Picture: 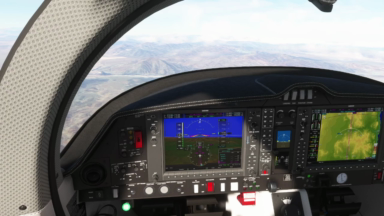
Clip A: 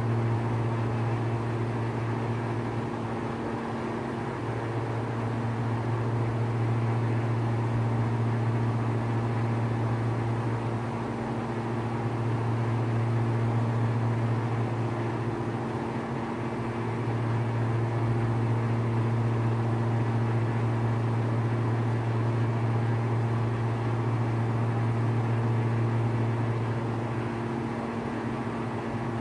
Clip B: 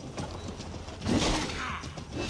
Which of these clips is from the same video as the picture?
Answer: A